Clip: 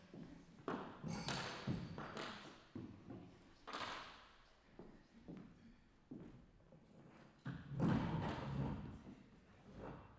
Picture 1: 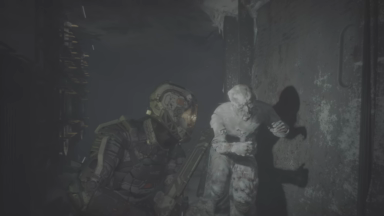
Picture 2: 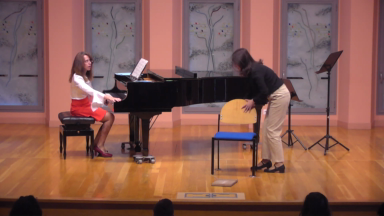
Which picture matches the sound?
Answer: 2